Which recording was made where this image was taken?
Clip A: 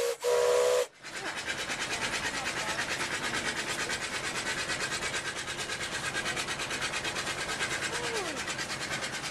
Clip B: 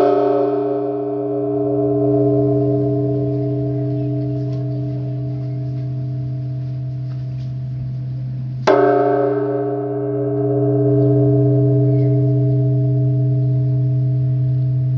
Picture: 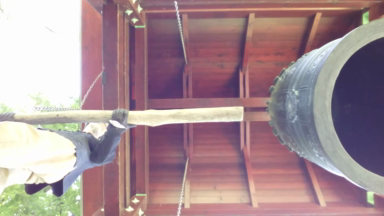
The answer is B